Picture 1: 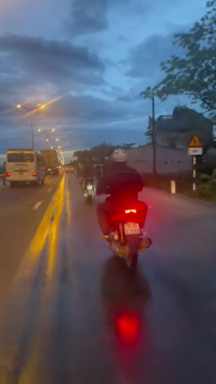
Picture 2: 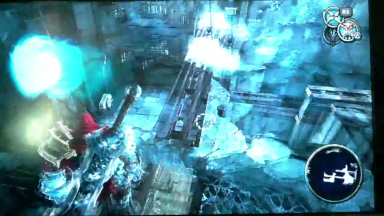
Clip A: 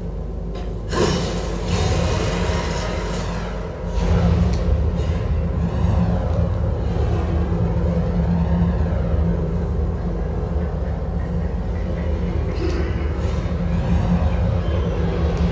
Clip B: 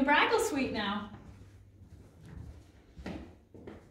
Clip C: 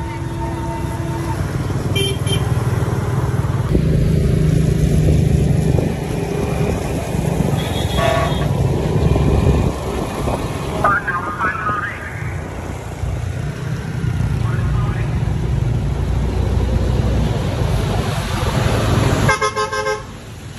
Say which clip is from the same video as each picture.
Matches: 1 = C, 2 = A